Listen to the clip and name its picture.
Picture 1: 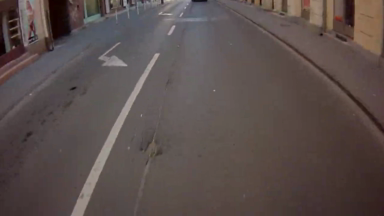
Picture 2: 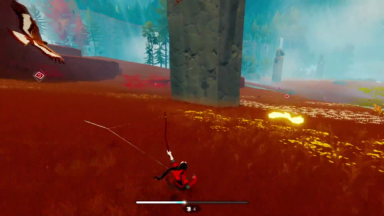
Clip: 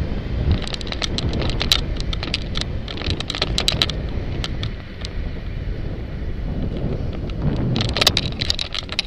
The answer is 1